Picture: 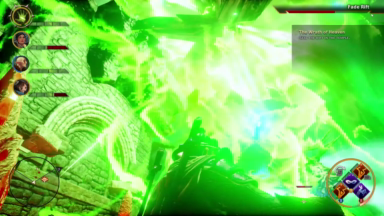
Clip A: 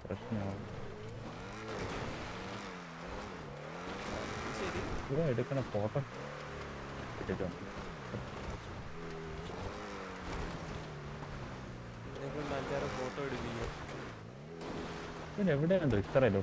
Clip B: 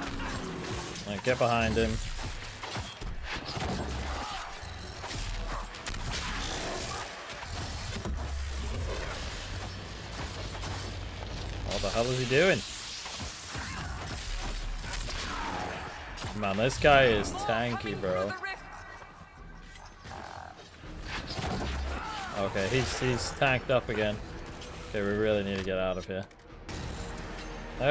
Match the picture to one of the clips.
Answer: B